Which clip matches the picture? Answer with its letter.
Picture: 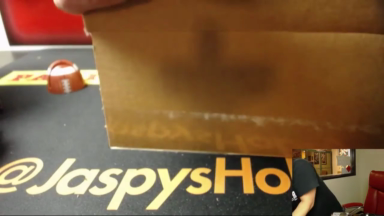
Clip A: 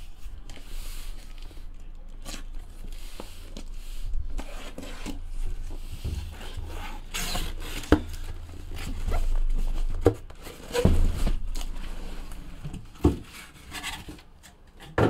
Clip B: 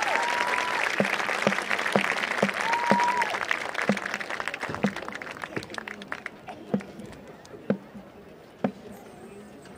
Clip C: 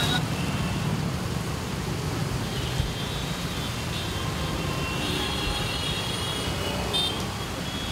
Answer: A